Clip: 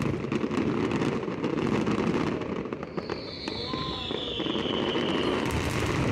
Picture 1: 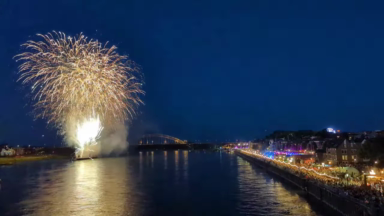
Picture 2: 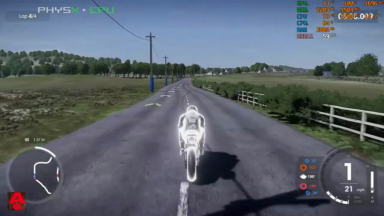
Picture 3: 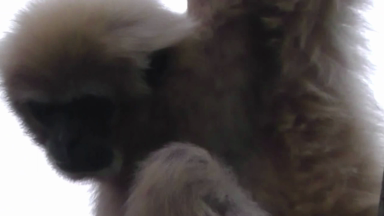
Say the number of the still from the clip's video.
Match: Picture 1